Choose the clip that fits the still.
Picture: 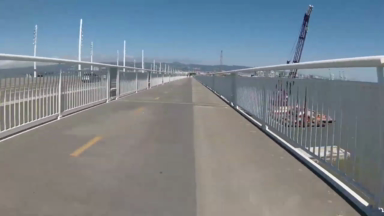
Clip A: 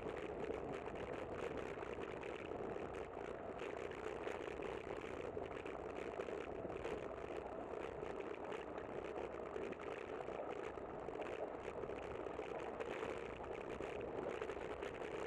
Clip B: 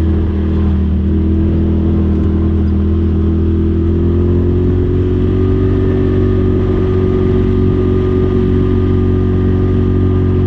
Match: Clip A